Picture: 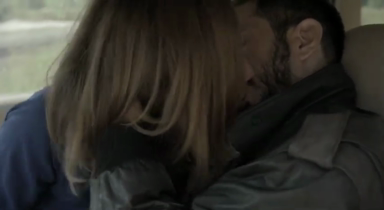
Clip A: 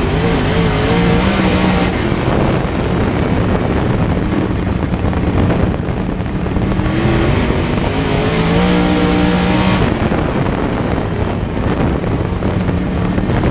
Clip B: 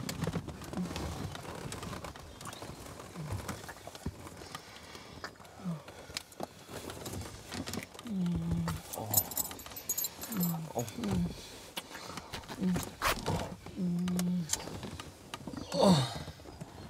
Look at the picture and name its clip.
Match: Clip B